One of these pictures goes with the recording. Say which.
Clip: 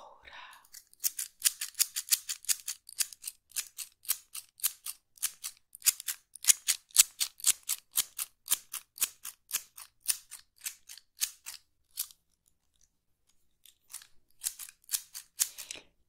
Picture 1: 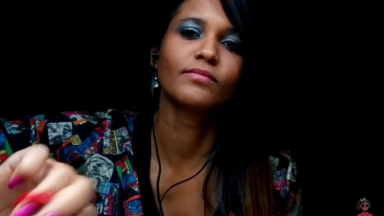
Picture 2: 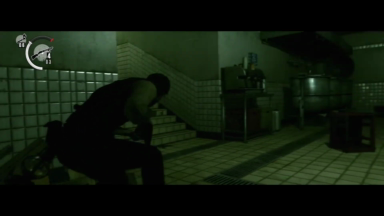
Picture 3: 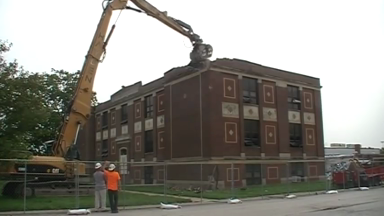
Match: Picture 1